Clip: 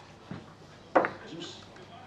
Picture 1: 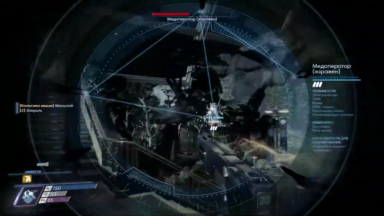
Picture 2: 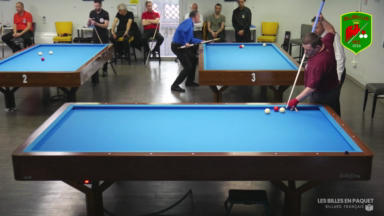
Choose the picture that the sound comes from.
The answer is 2